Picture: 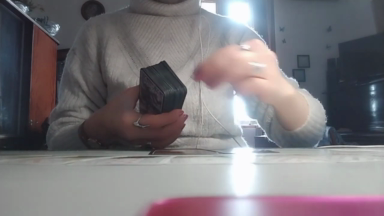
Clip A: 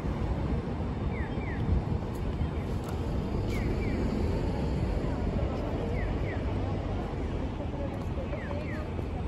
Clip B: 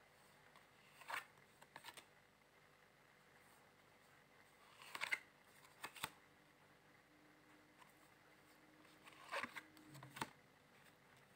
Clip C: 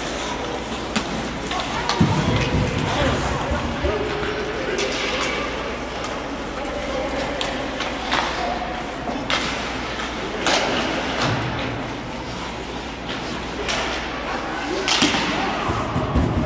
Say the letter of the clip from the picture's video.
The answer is B